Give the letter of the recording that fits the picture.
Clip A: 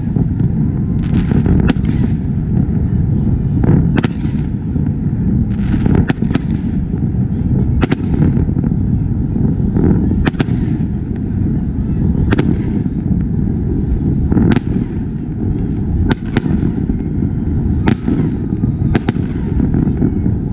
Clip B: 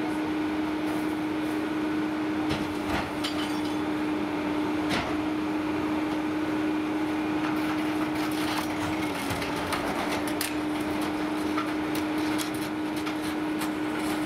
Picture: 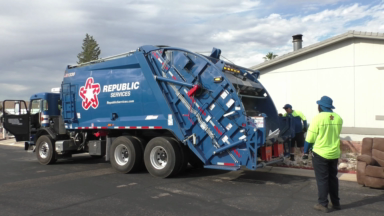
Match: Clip B